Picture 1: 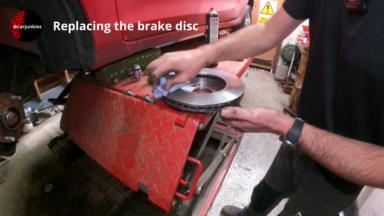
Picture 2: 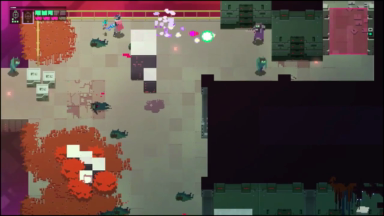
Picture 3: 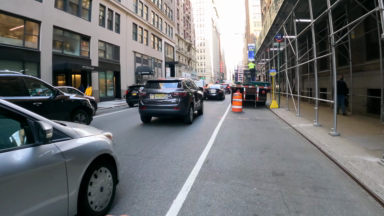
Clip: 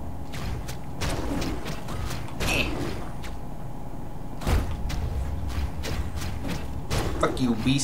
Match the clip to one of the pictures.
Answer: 2